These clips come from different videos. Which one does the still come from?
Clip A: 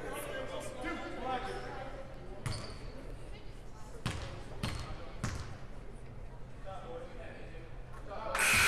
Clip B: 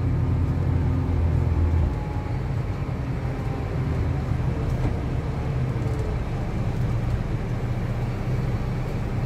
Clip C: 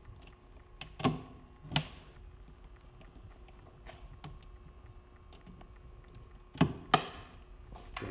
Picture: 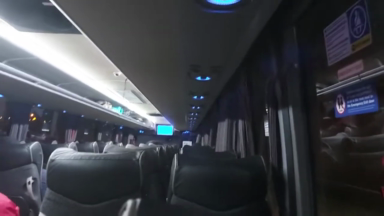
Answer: B